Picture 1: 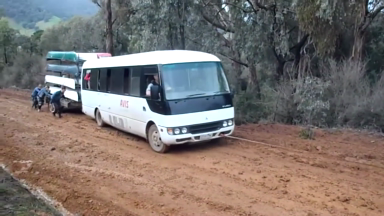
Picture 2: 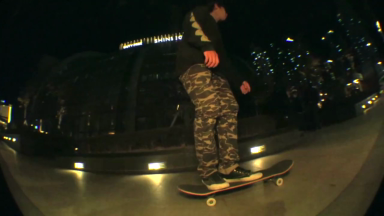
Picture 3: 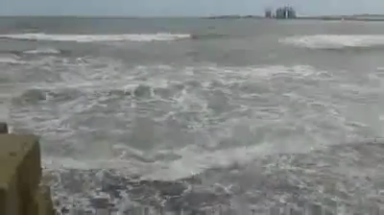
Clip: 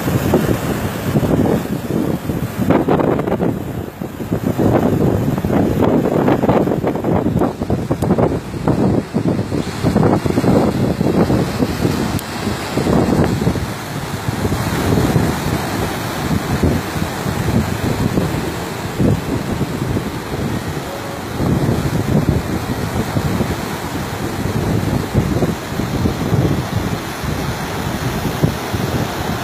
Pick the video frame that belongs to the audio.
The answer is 3